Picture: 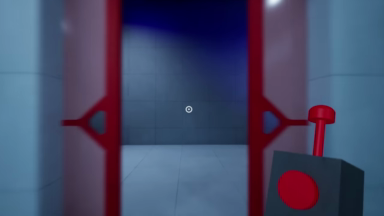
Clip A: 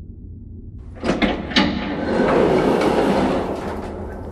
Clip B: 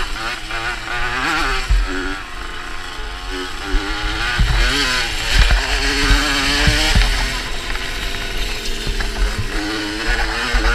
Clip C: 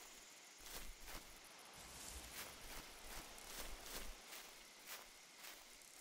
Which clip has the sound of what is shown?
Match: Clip A